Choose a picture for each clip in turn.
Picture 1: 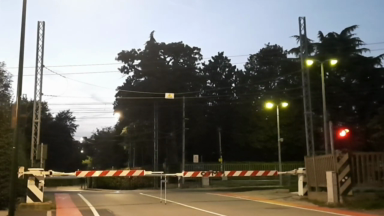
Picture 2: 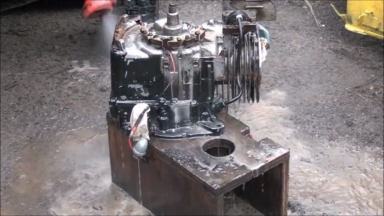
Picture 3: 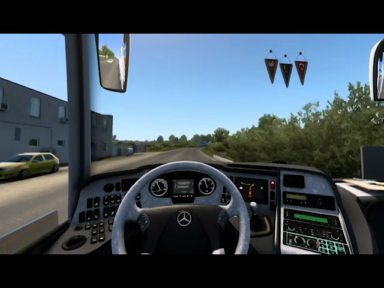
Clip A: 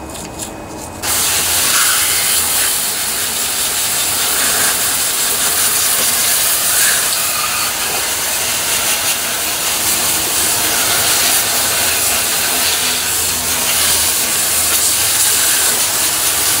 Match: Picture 2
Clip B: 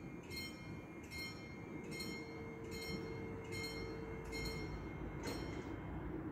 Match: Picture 1